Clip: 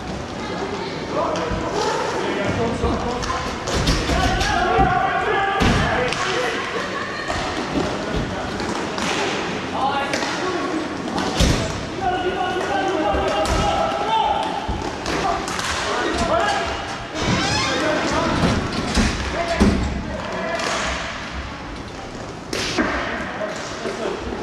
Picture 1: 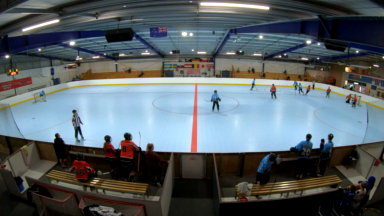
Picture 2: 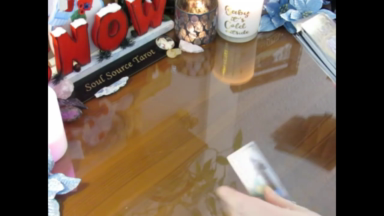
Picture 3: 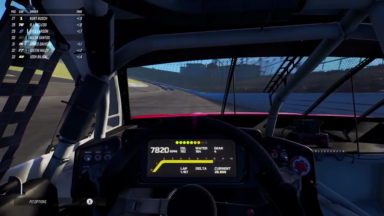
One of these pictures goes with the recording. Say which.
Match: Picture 1